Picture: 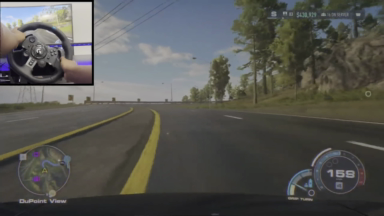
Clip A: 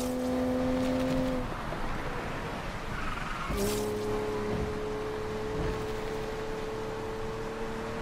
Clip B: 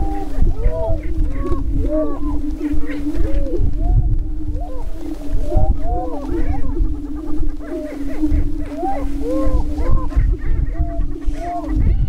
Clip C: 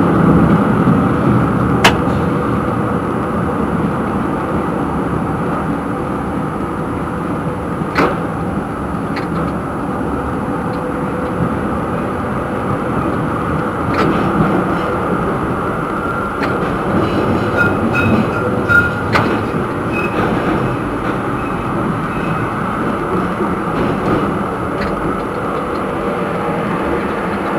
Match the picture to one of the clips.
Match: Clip A